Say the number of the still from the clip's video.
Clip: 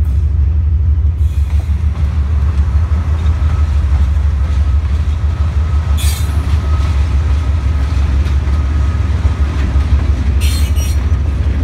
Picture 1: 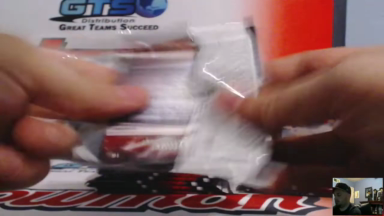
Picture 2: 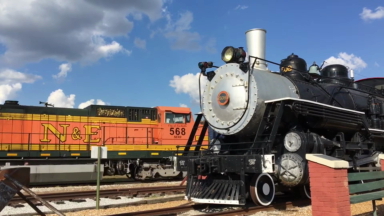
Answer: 2